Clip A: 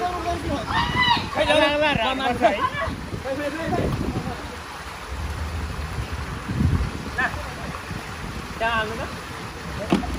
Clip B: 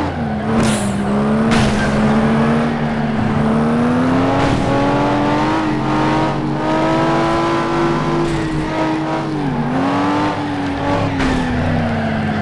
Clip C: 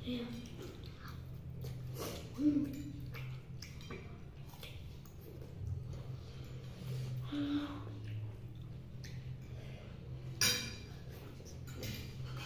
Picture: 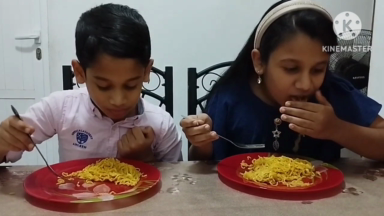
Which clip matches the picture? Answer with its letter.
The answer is C